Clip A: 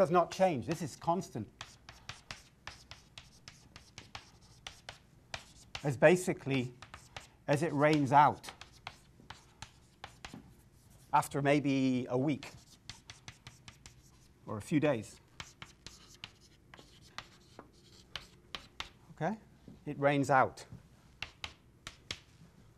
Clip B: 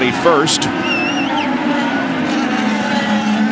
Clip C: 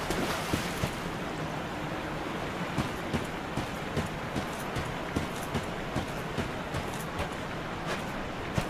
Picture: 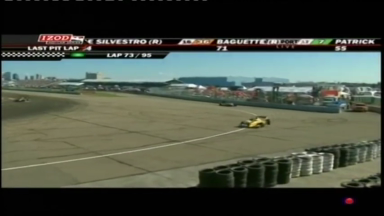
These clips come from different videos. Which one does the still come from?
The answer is B